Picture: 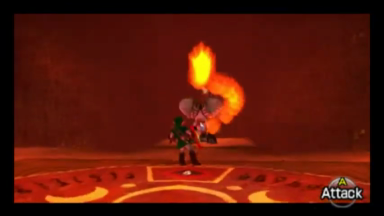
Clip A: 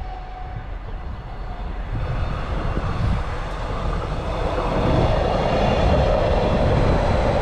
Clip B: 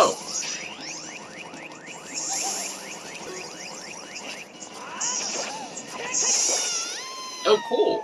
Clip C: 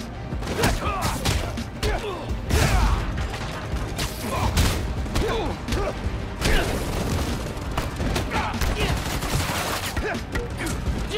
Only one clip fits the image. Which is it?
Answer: B